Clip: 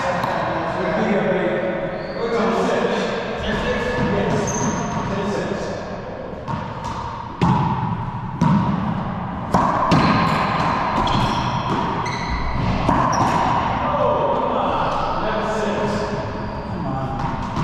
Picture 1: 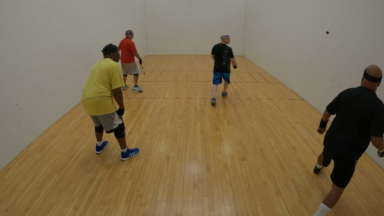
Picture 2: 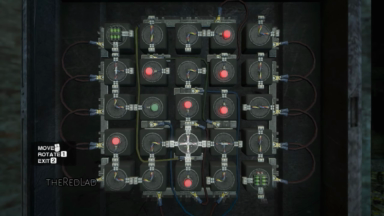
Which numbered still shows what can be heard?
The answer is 1